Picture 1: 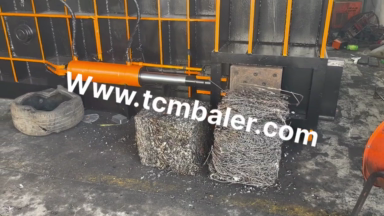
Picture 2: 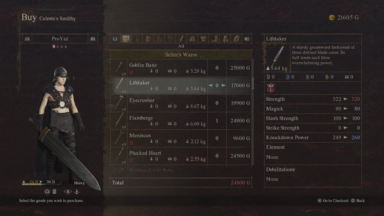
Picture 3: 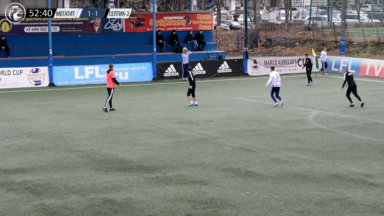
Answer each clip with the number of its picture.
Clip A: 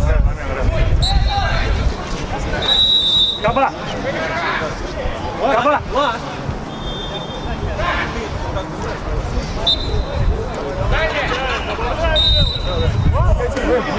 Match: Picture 3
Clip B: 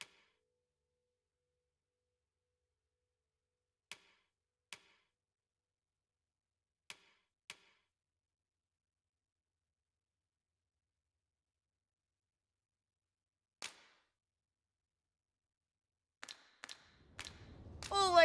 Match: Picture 2